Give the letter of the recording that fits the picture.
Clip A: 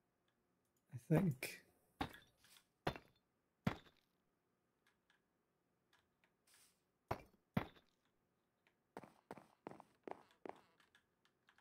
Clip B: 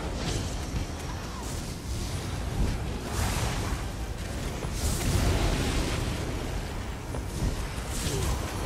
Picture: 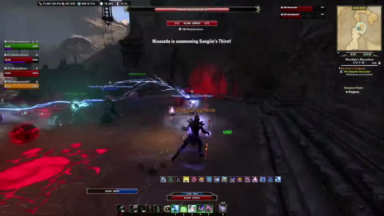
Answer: B